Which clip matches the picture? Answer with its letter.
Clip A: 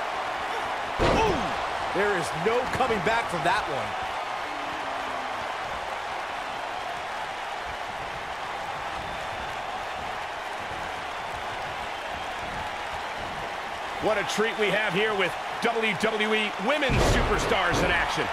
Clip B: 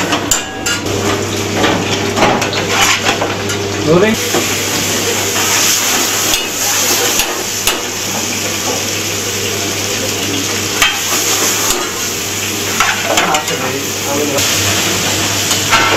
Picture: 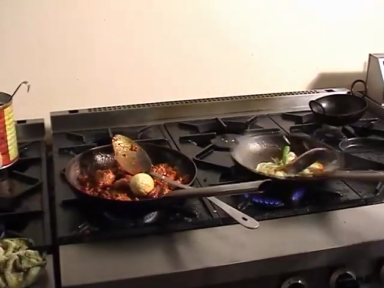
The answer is B